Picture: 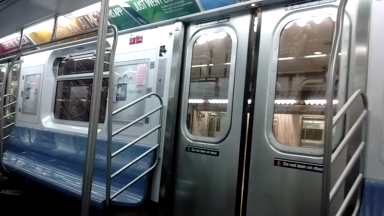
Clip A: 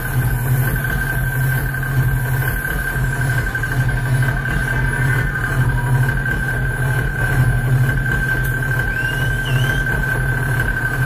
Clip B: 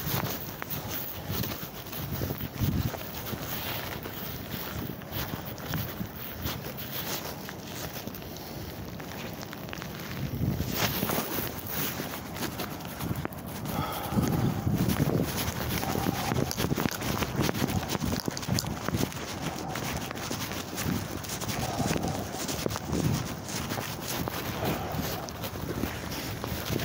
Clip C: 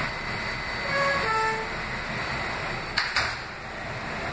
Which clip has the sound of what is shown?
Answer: C